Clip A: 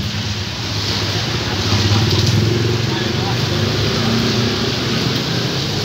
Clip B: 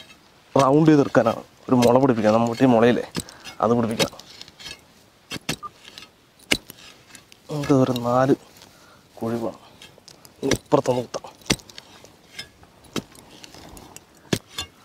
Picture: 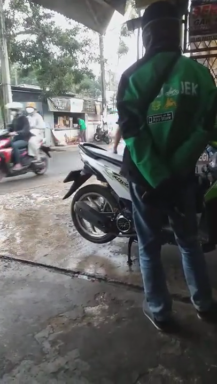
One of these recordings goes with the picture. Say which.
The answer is A